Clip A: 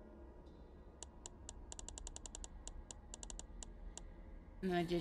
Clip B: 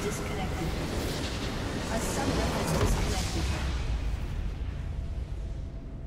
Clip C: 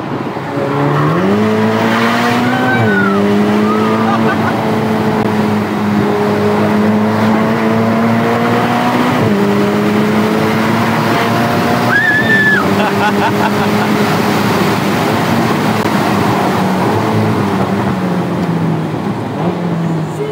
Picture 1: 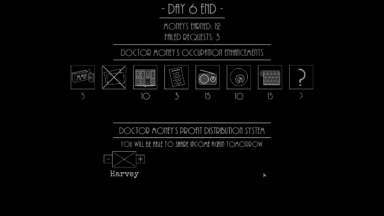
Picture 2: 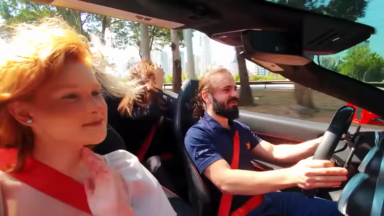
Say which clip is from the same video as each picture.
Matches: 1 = A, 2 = C